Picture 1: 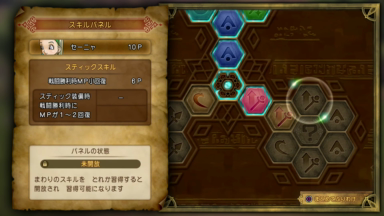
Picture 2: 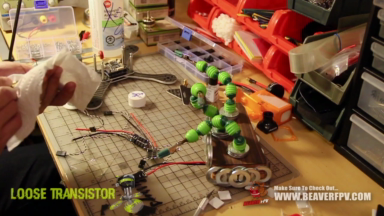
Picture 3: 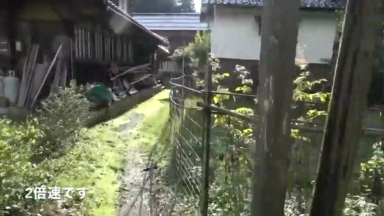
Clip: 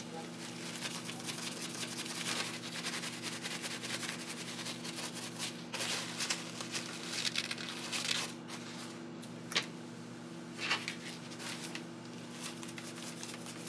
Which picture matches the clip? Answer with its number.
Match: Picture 2